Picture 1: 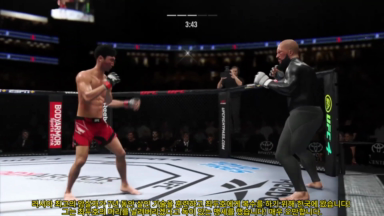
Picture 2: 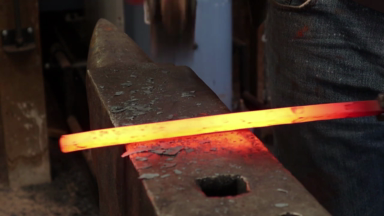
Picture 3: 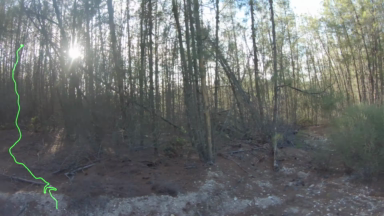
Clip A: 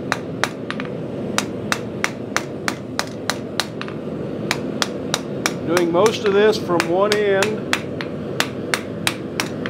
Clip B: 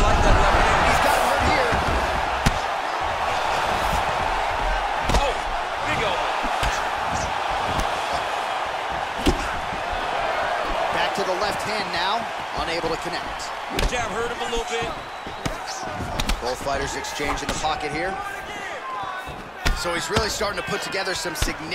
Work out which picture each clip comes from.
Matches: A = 2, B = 1